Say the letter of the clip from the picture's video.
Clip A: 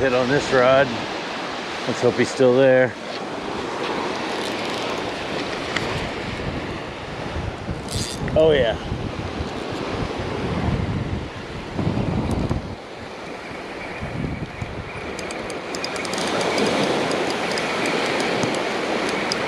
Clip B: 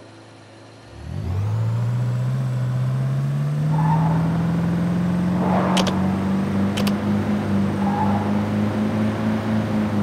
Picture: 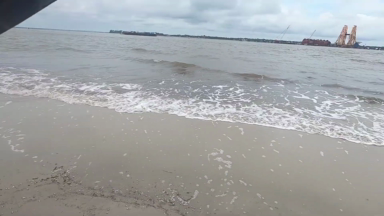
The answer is A